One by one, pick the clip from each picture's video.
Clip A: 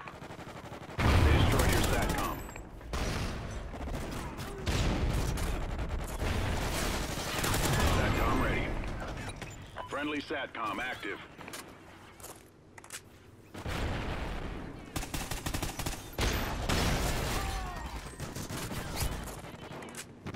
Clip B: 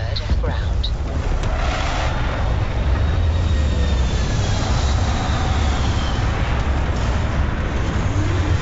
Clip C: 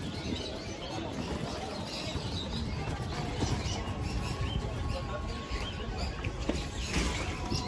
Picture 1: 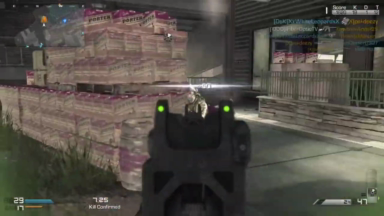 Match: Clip A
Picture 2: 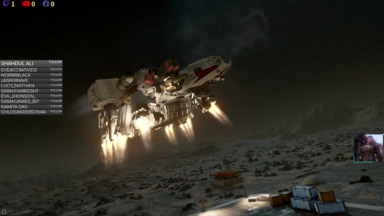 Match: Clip B